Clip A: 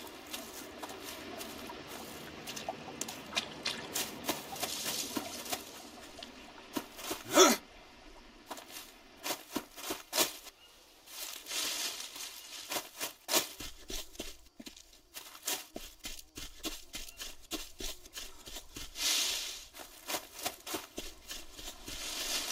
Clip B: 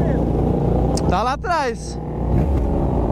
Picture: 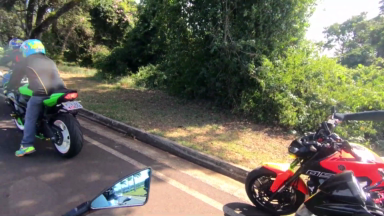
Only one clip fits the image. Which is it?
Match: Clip B